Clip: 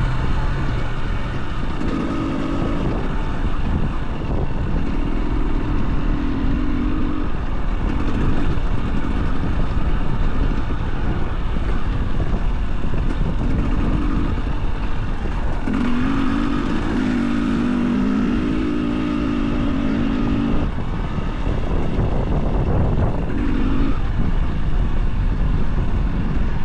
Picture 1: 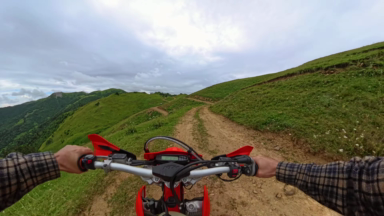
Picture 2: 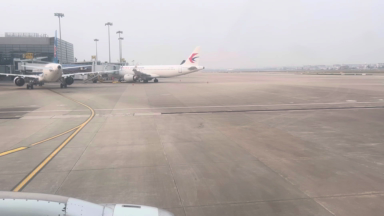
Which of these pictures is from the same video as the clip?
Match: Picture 1